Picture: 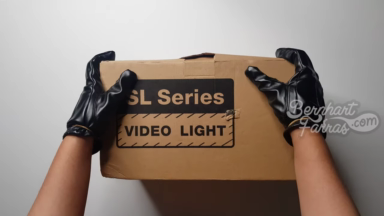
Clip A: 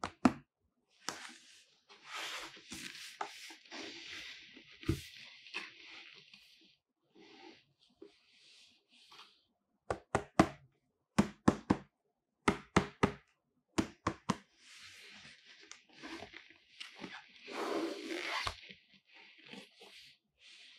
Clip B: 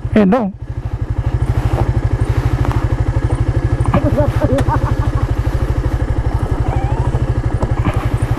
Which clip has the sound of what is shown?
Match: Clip A